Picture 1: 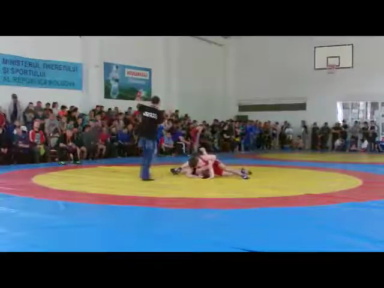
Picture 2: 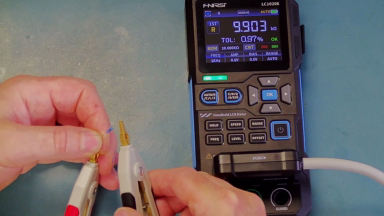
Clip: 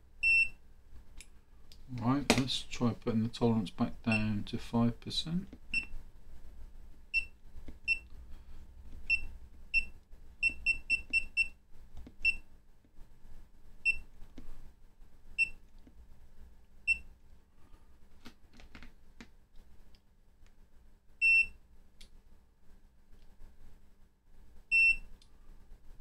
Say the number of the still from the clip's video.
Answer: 2